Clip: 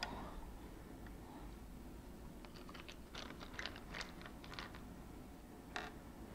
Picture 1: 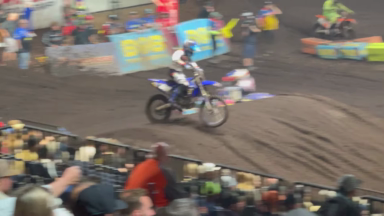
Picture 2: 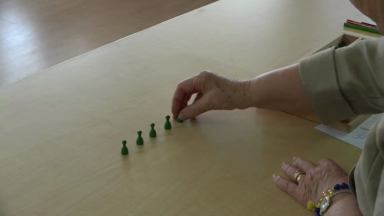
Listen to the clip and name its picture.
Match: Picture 2